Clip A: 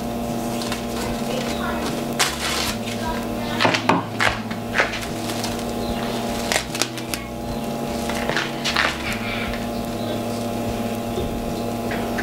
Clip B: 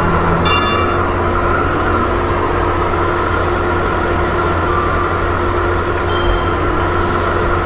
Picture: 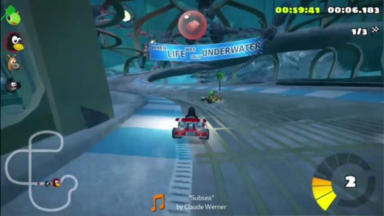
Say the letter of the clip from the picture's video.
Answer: B